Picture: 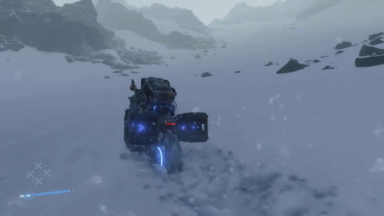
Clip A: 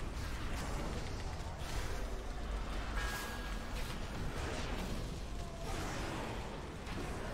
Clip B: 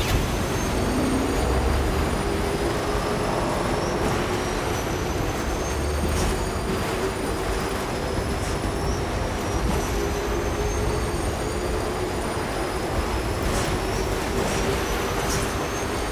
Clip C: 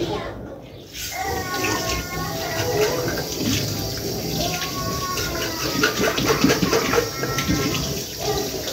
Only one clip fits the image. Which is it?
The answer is B